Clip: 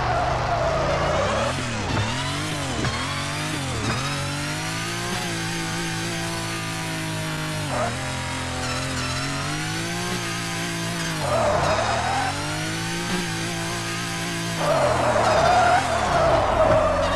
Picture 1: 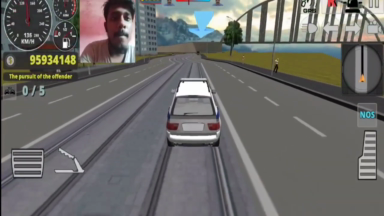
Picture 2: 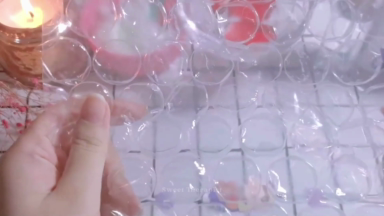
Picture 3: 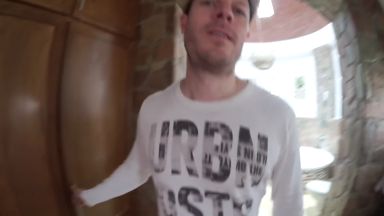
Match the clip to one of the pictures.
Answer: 1